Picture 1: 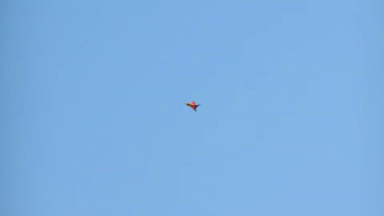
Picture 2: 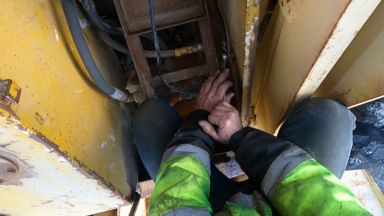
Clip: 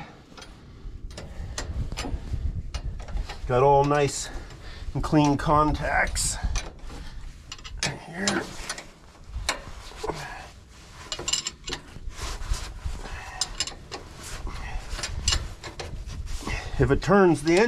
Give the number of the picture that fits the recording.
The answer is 2